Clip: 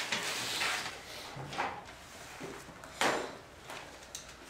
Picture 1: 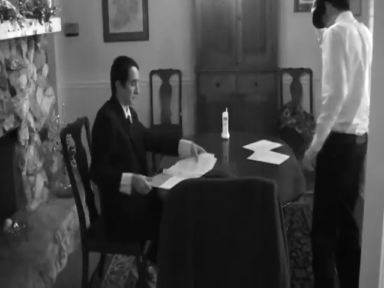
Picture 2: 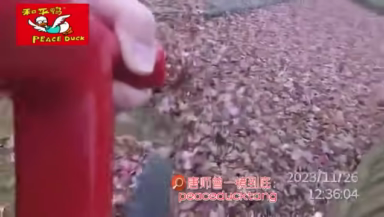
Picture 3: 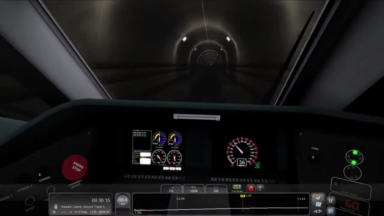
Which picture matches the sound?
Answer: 1